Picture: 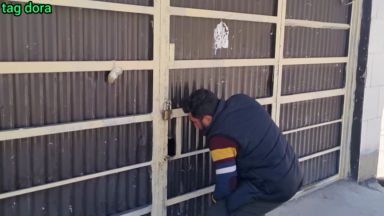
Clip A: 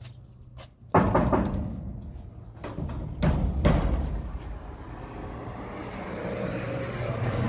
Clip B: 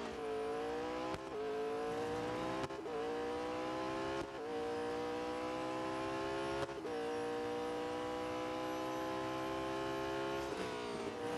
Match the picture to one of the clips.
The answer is A